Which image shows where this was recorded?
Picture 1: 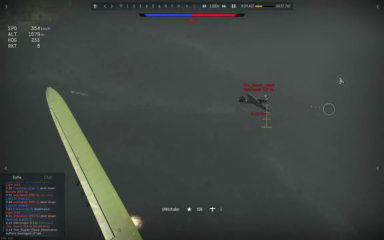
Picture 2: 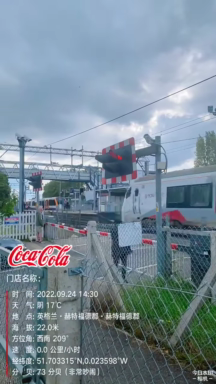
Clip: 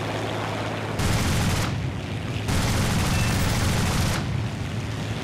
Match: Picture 1